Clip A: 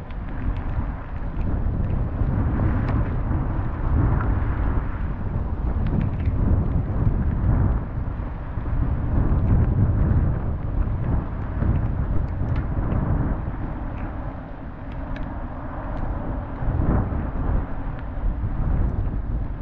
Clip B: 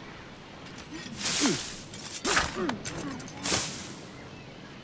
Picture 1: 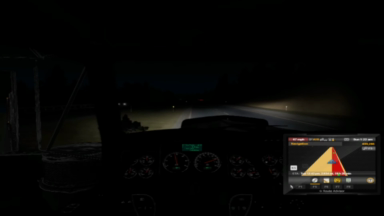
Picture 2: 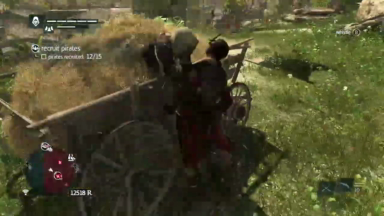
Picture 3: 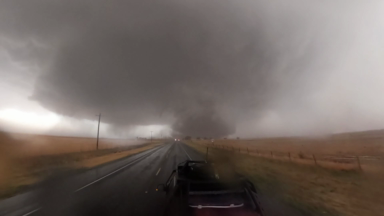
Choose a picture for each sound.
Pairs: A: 3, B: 2